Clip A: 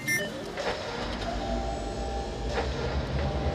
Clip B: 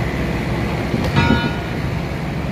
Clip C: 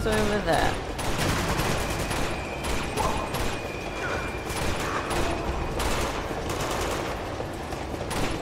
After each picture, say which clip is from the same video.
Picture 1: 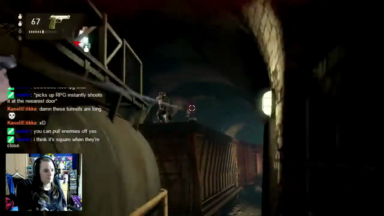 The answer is C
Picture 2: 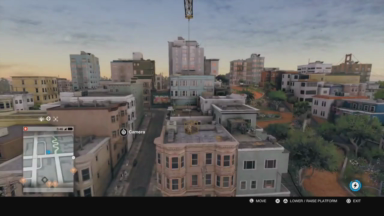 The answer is A